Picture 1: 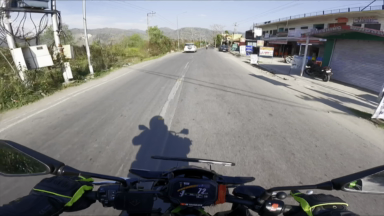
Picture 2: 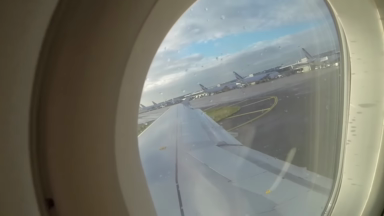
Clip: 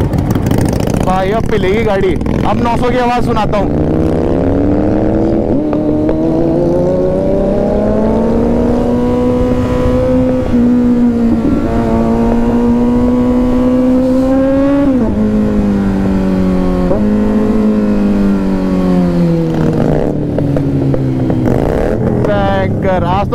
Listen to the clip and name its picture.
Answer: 1